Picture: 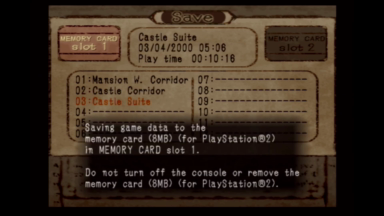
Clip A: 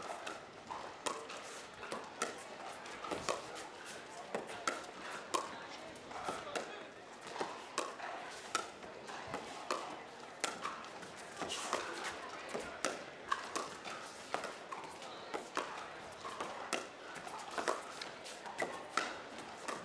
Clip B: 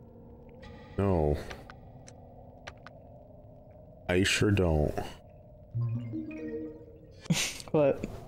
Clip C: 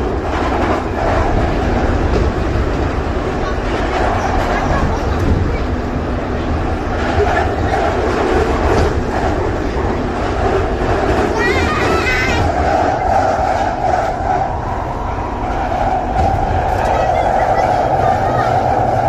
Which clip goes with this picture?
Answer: B